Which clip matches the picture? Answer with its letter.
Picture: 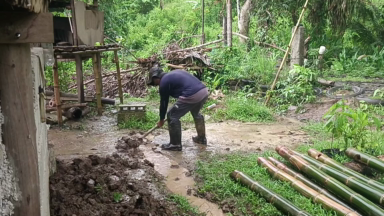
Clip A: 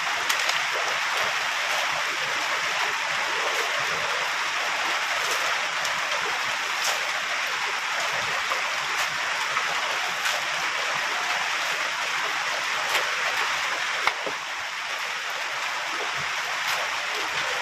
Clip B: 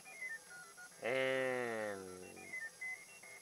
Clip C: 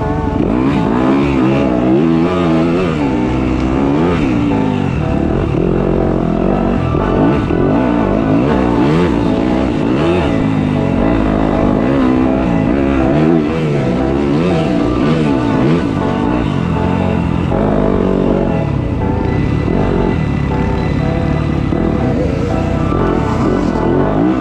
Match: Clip A